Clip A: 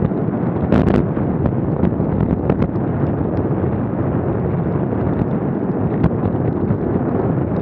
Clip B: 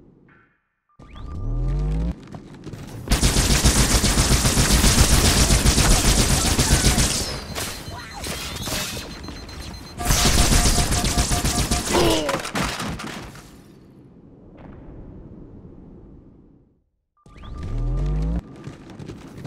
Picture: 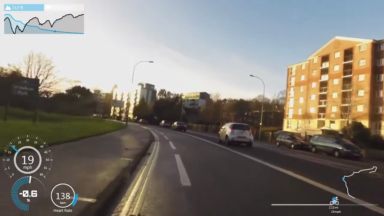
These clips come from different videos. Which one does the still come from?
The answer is A